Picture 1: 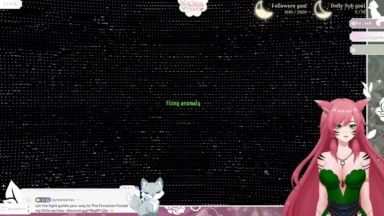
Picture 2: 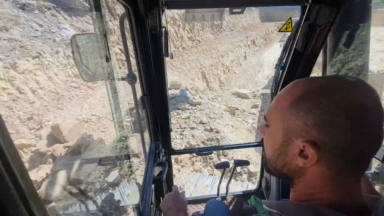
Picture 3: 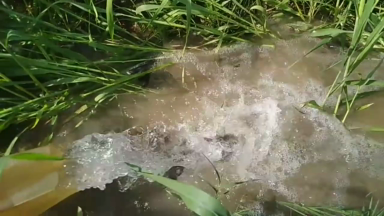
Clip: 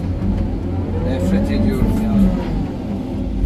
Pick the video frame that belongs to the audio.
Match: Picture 2